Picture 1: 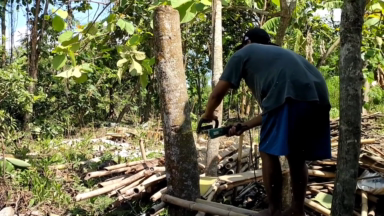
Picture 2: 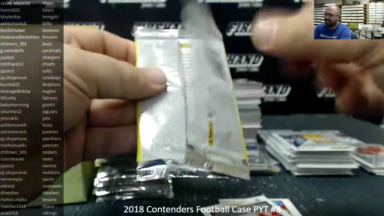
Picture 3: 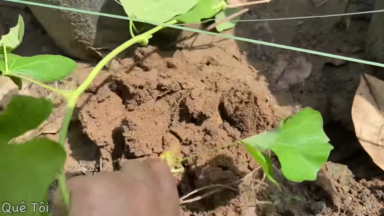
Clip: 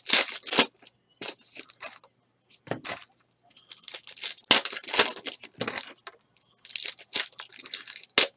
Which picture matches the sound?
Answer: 2